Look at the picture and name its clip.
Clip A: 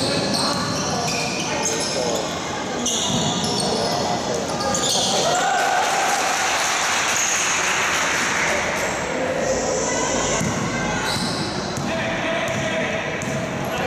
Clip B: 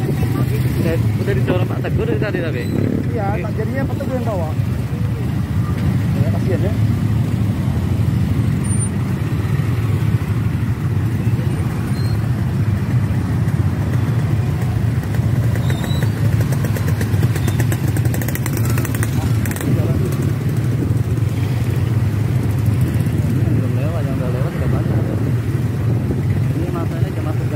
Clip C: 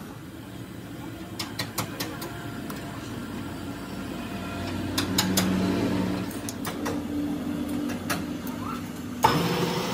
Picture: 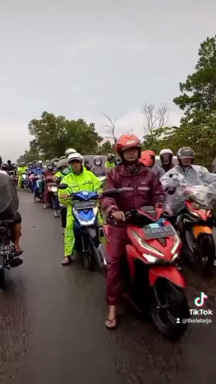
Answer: B